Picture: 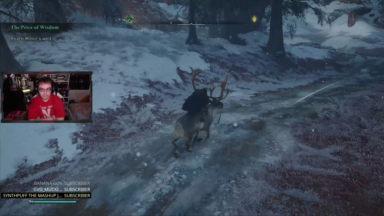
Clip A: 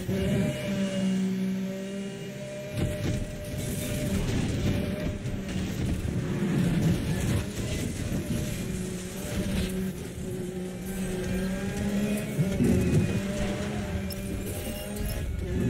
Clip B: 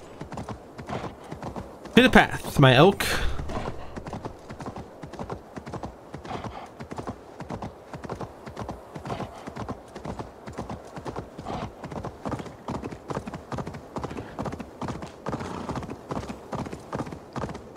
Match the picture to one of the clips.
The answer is B